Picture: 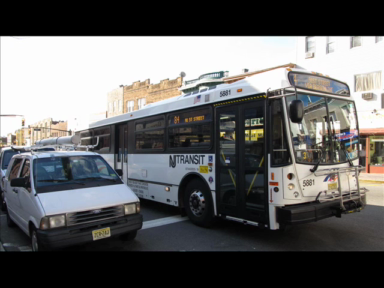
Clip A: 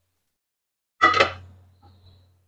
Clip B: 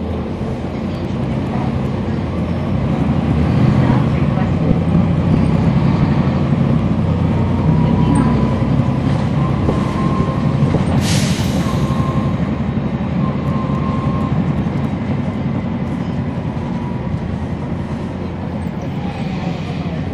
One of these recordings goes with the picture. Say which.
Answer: B